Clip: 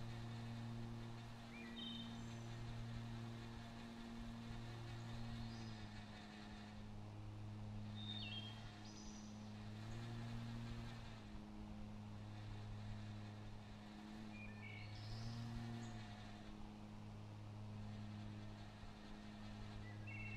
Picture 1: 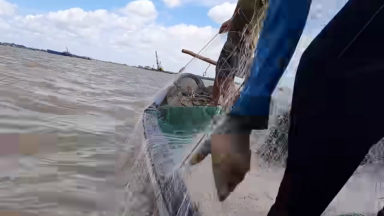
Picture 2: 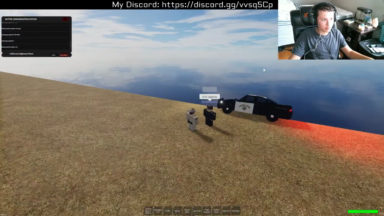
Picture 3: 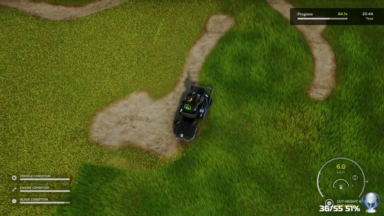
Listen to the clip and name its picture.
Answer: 3